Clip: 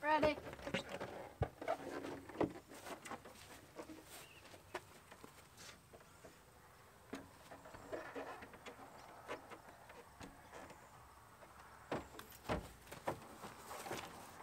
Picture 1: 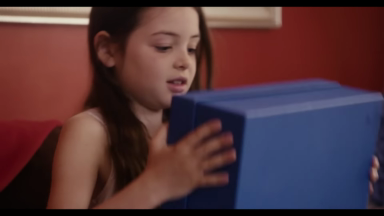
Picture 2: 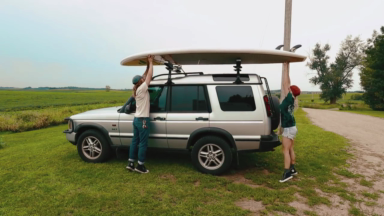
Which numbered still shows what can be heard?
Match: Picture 2